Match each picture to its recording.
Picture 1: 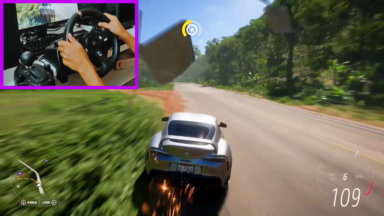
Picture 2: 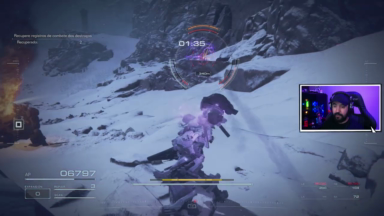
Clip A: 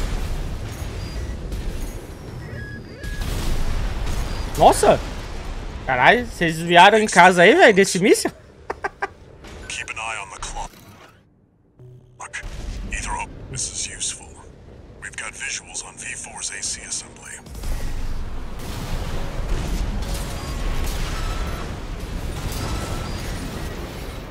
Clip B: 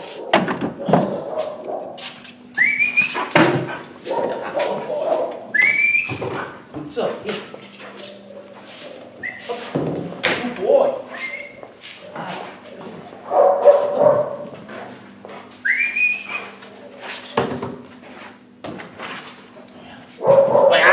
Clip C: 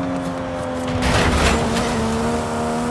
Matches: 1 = C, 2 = A